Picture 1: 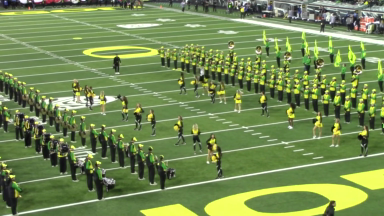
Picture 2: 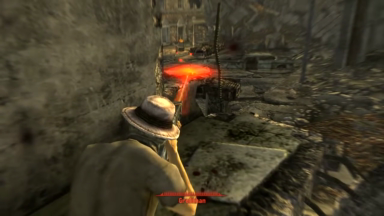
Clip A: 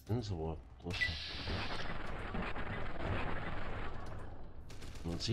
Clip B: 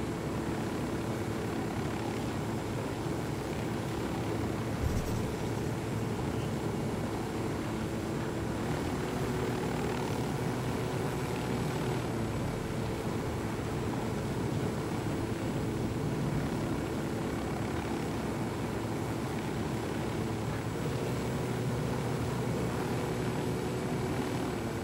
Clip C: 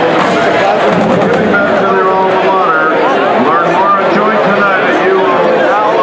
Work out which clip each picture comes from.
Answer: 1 C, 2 A